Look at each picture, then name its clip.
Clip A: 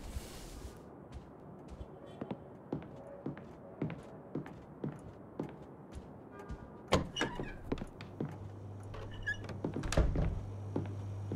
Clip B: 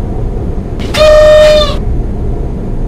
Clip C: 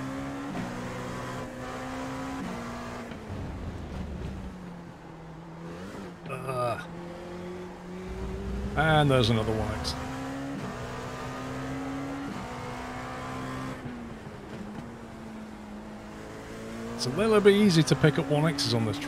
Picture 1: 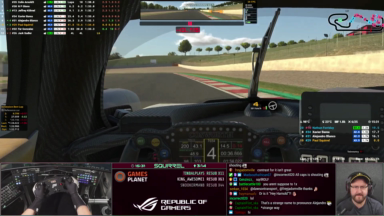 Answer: C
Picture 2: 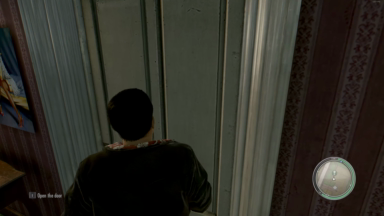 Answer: A